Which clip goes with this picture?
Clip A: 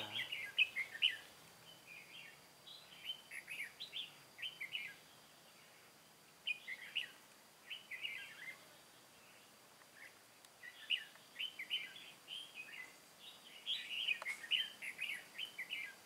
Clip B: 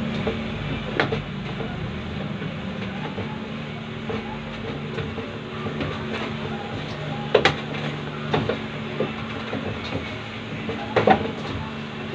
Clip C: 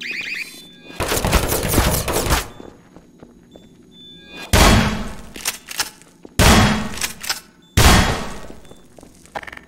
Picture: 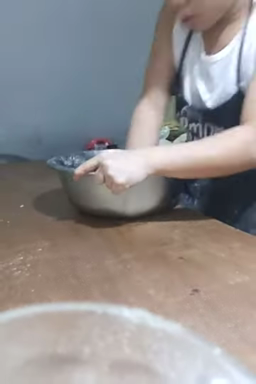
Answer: B